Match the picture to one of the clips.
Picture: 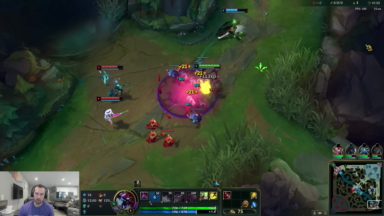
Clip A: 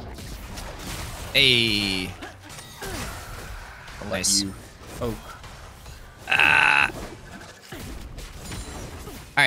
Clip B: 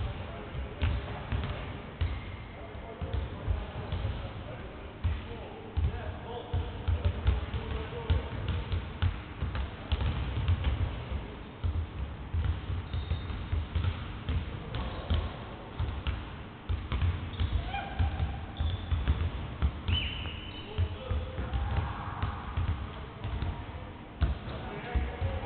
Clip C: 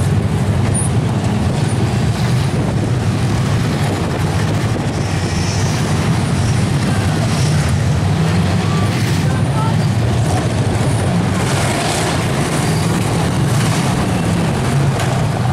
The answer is A